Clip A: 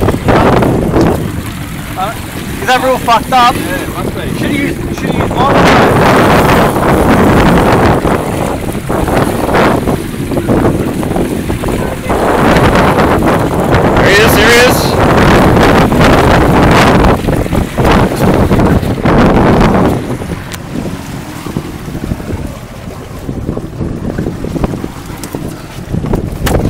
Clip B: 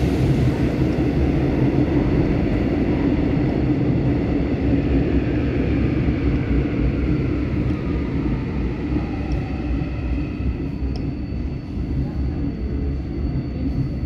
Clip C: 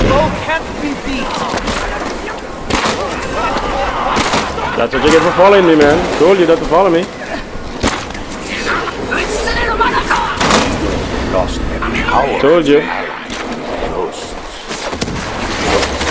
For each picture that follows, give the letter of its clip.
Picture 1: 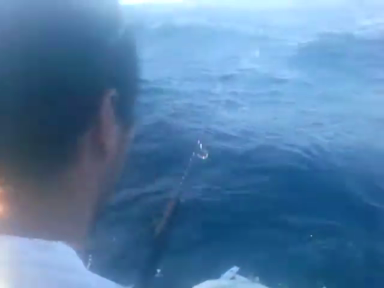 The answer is A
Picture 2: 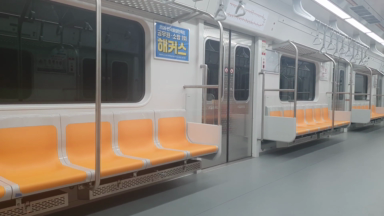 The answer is B